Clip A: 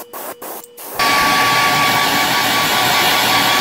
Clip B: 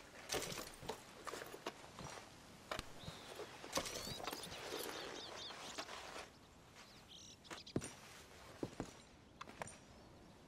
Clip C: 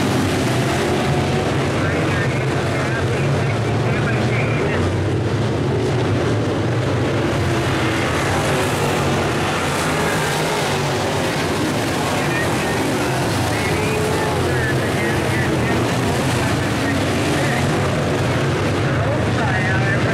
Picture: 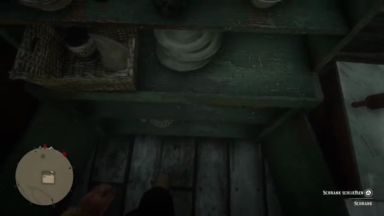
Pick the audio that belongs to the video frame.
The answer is B